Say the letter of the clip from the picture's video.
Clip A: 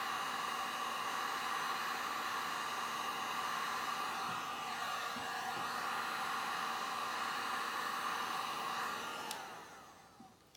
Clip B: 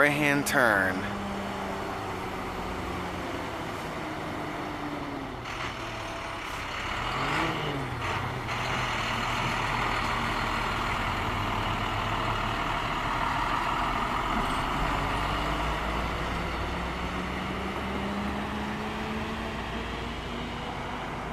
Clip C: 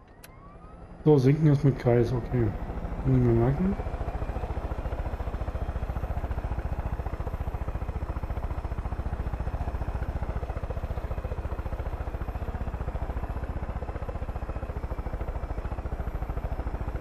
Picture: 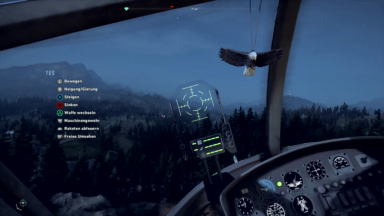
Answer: C